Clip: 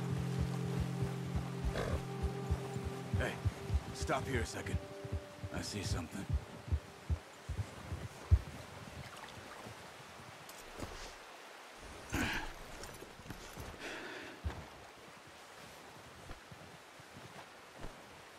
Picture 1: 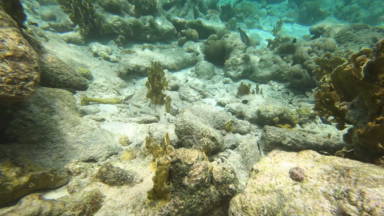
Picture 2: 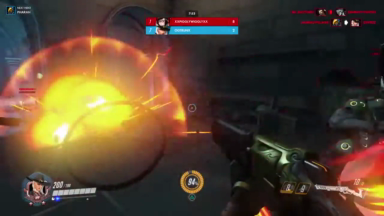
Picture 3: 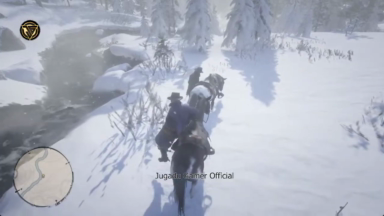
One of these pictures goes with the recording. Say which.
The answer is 3